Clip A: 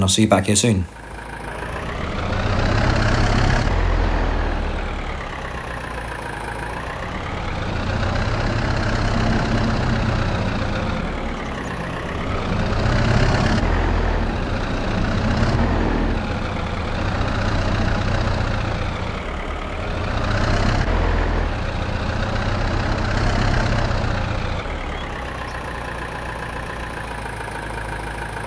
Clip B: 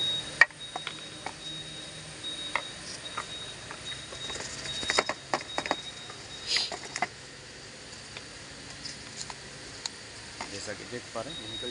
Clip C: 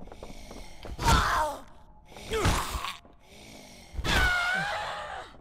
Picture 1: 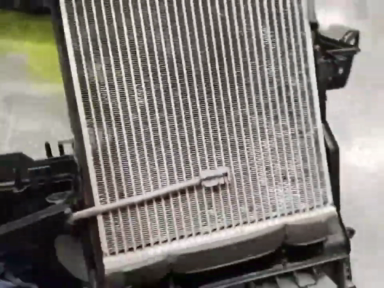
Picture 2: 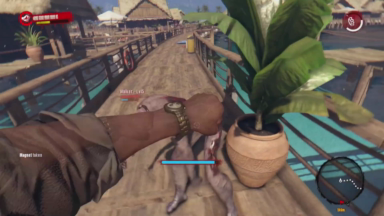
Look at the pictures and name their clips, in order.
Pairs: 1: B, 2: C